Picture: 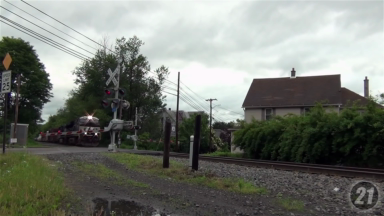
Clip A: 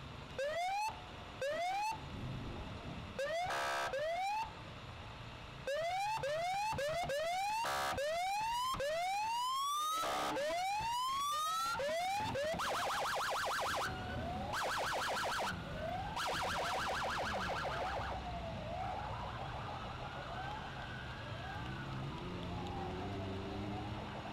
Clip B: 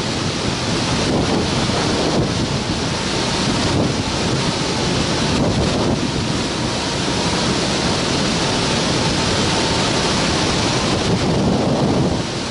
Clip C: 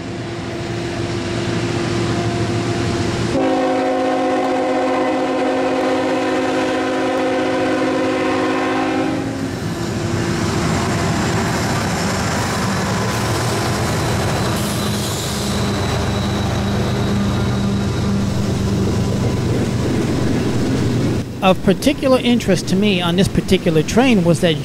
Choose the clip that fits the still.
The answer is C